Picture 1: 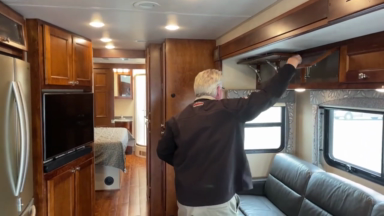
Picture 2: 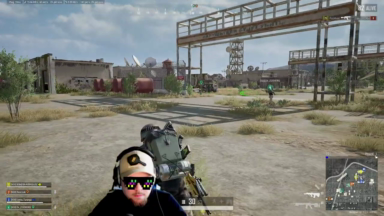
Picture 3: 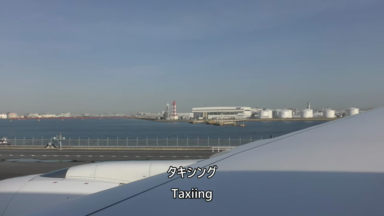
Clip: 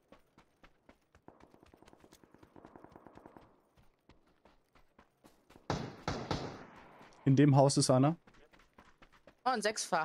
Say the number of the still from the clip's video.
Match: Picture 2